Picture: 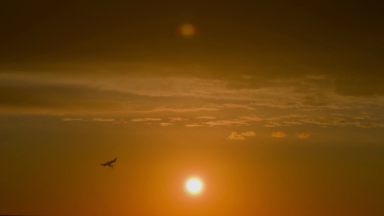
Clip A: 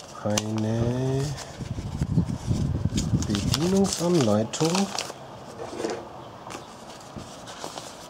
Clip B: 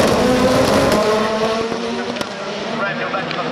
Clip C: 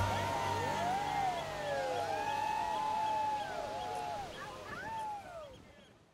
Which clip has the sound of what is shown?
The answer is C